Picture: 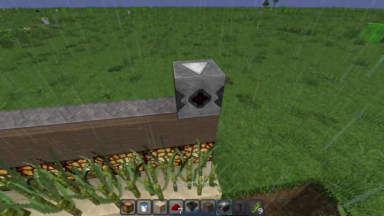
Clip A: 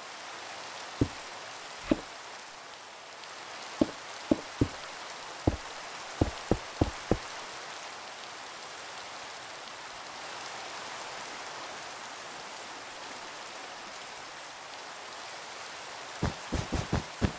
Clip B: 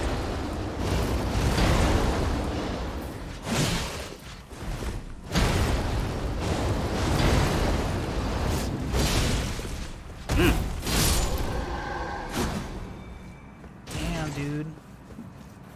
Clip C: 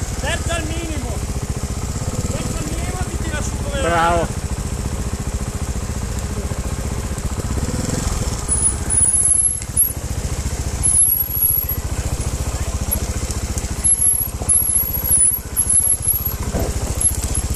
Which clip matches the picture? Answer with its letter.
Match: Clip A